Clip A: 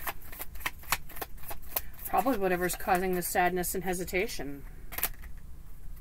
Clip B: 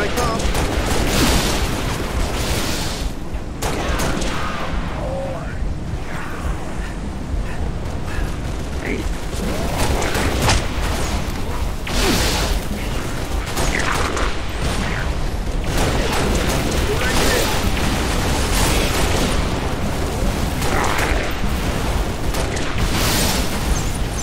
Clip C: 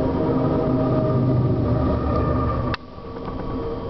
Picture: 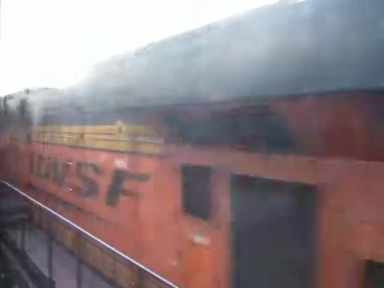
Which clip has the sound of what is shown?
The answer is C